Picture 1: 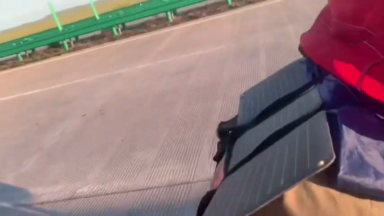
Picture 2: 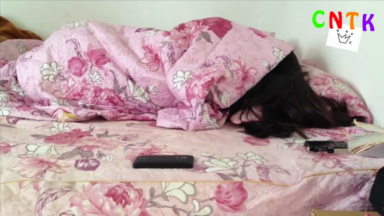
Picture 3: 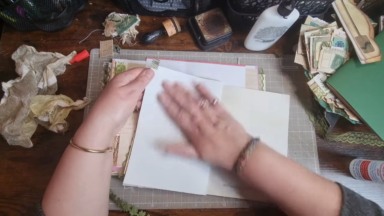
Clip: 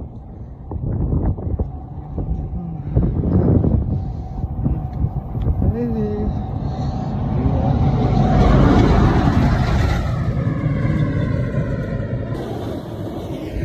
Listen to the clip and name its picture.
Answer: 1